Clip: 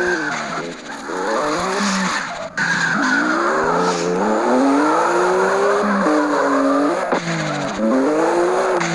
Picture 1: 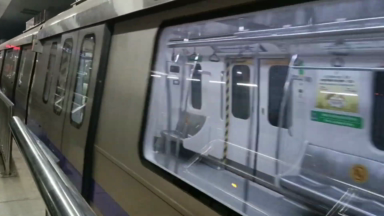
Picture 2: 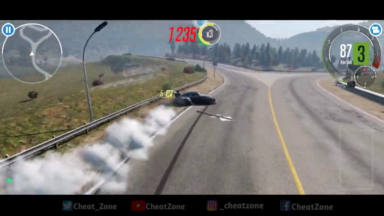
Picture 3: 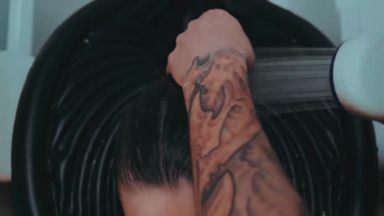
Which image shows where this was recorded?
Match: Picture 2